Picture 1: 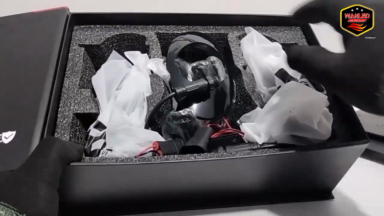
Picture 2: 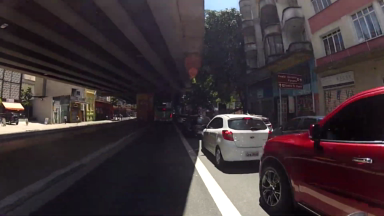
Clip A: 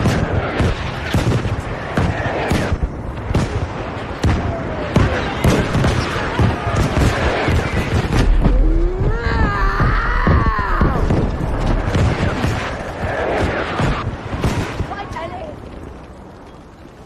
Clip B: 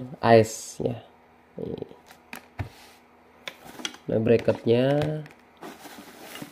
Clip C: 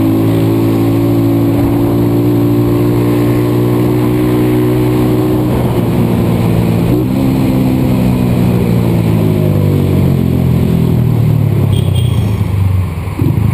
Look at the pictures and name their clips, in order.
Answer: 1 B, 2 C